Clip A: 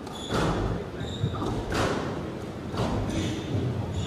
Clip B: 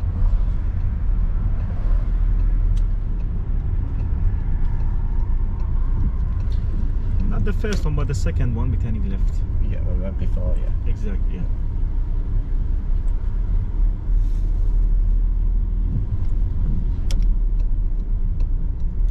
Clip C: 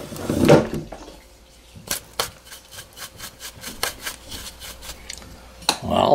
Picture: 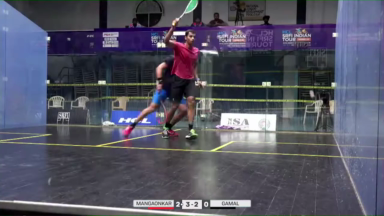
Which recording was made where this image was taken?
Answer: A